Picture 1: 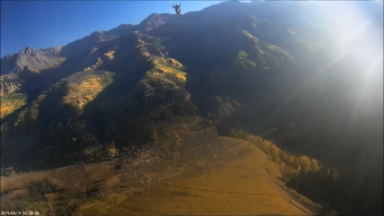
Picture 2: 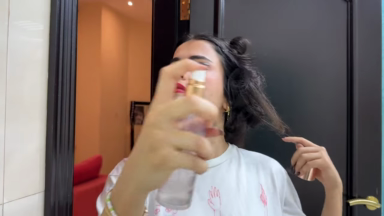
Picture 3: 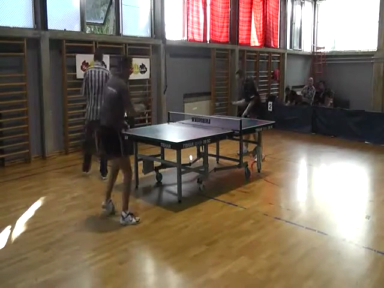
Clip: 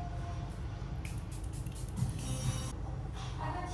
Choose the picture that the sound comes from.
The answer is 2